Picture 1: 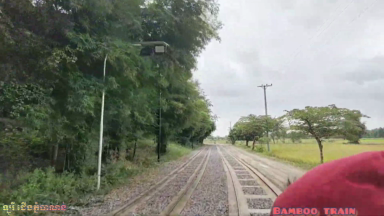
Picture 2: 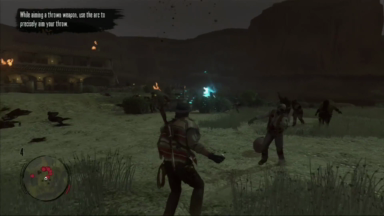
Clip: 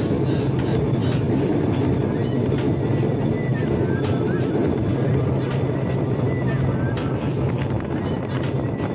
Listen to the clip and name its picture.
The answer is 1